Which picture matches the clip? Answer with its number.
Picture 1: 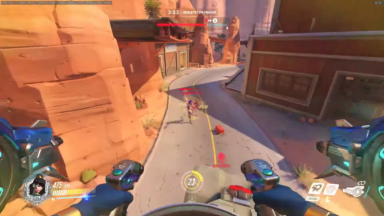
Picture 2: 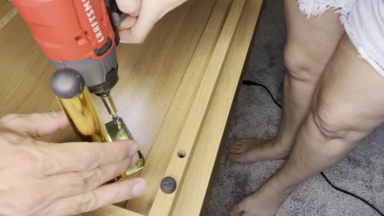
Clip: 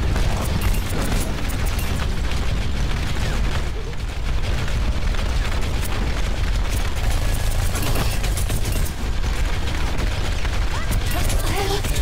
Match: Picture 1